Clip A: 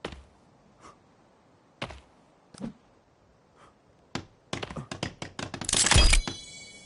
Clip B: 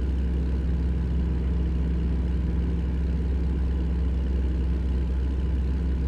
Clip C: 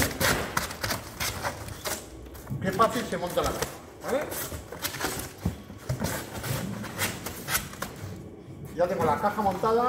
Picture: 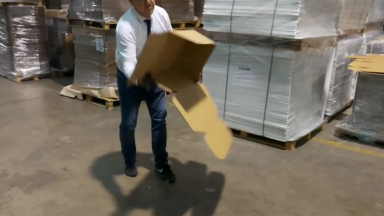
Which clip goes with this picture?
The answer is C